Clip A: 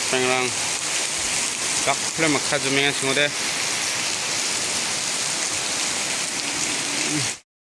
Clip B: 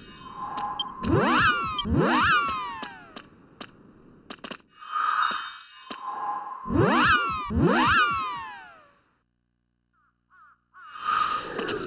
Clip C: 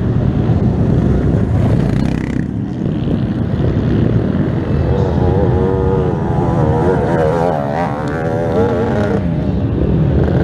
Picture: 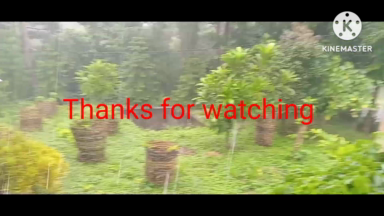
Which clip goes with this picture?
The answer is A